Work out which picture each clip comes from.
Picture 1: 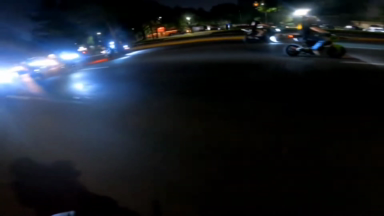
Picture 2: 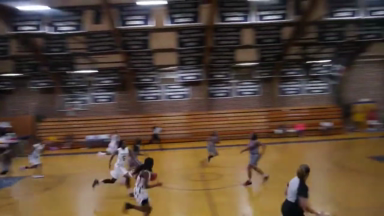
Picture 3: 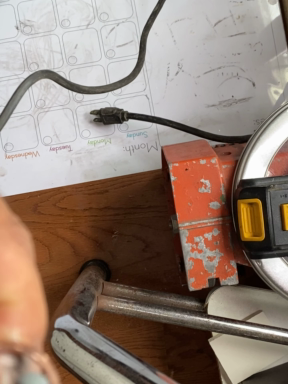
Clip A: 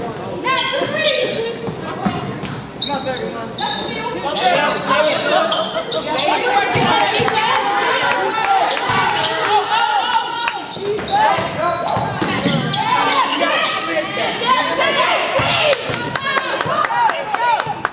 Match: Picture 2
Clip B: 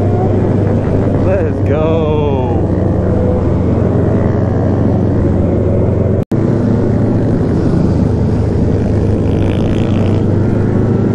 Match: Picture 1